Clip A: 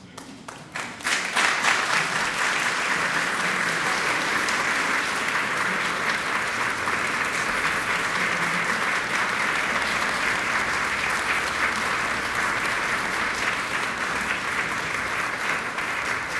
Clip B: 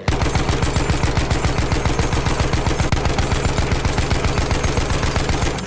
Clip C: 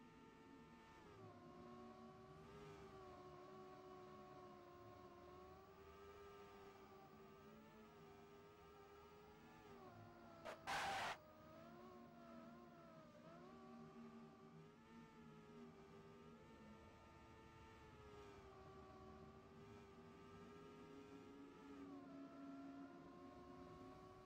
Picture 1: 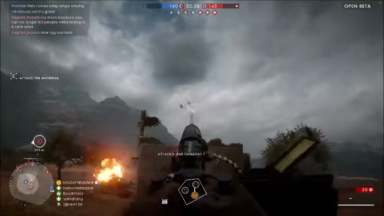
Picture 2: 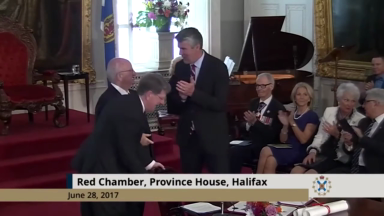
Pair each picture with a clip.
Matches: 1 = B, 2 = A